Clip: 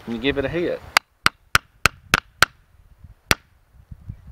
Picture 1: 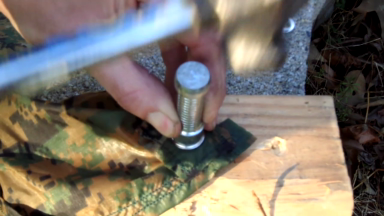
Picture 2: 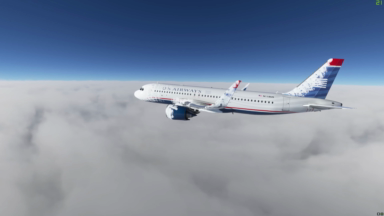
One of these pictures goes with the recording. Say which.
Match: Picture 1